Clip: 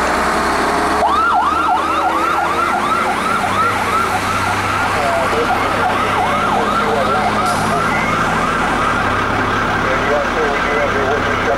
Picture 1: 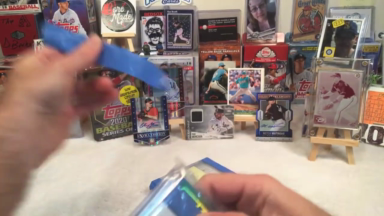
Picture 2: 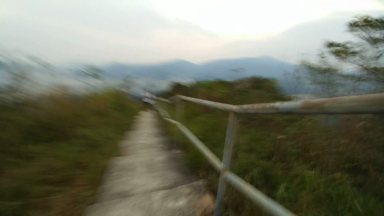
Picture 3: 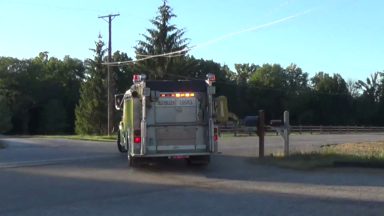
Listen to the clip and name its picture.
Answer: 3